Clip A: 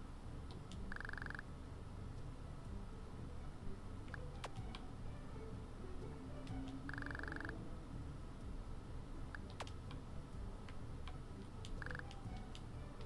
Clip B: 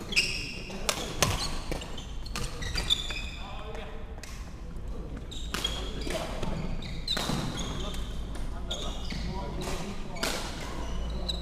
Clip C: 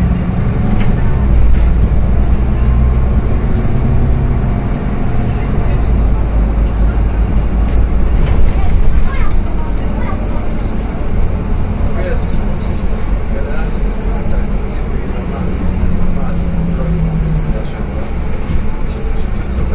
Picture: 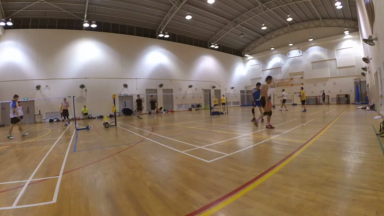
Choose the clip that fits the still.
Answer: B